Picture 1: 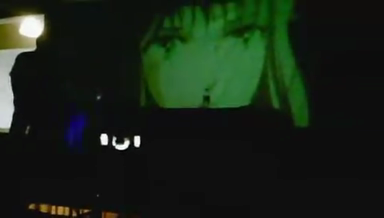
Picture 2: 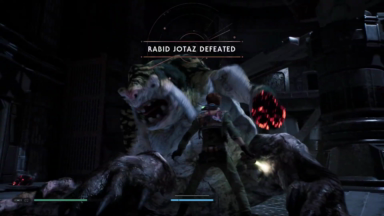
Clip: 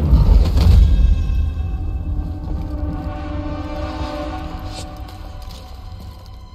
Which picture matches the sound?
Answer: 2